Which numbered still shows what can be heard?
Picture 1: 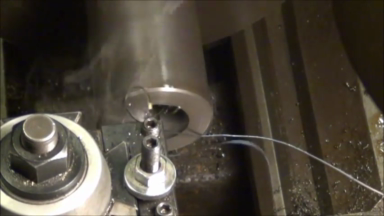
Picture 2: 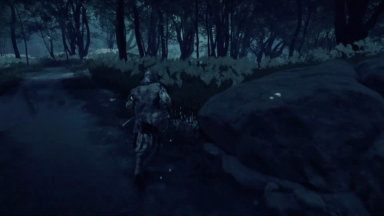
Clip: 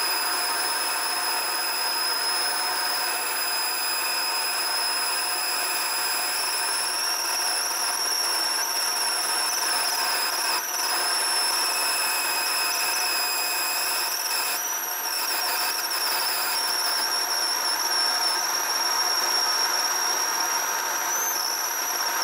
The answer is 1